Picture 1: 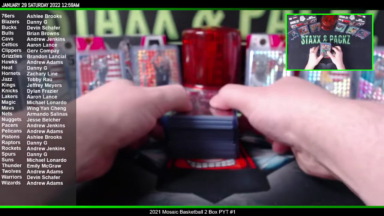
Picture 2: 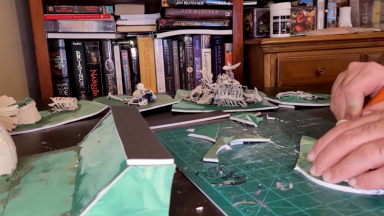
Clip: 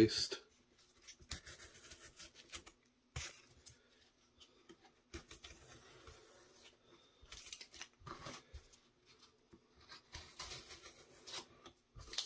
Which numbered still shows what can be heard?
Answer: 2